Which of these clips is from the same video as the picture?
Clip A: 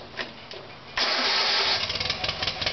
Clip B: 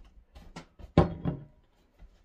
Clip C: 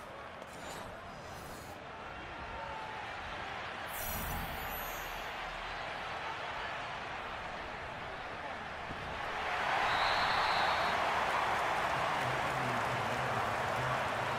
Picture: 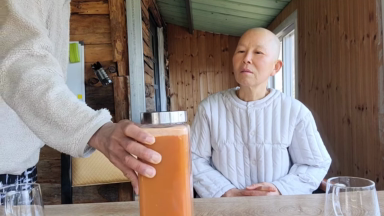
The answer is B